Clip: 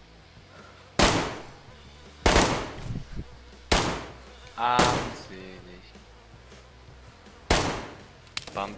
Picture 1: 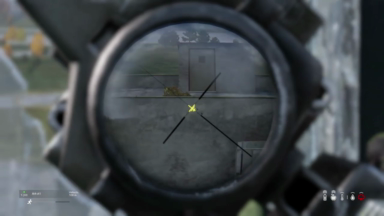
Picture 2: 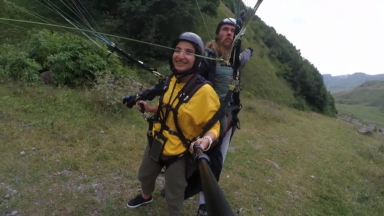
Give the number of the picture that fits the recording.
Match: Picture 1